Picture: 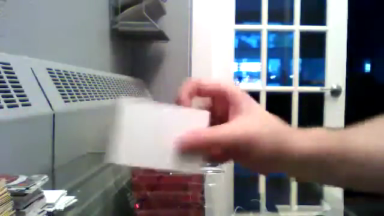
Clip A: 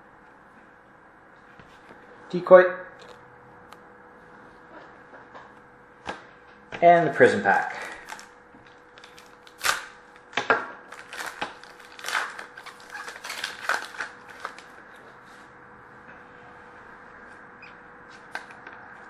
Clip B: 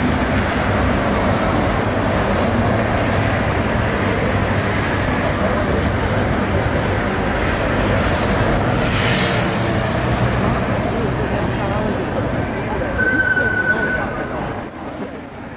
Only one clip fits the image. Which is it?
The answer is A